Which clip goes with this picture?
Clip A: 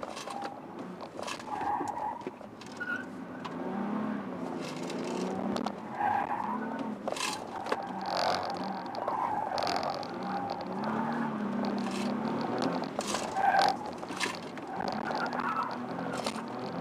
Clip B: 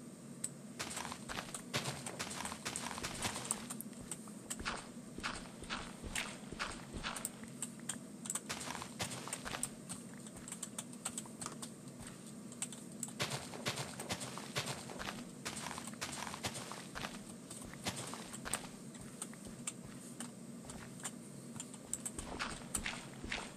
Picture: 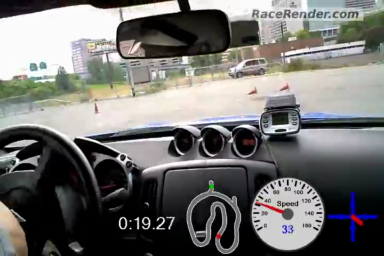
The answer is A